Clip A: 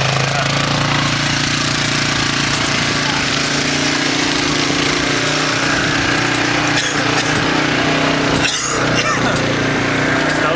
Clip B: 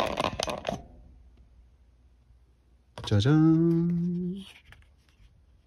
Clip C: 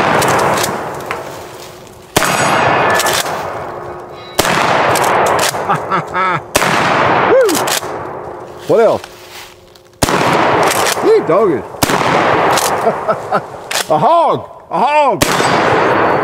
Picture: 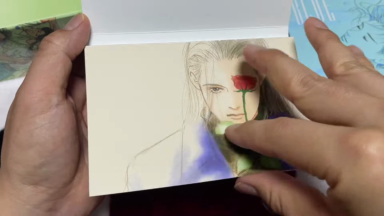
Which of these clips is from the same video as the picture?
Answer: B